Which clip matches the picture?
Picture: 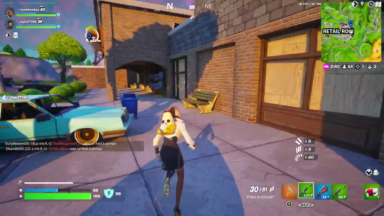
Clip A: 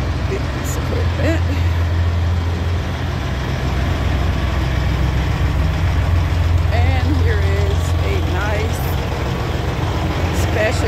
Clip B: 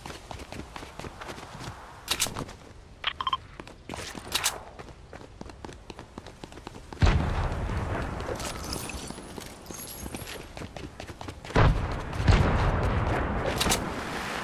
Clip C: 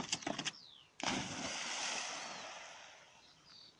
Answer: B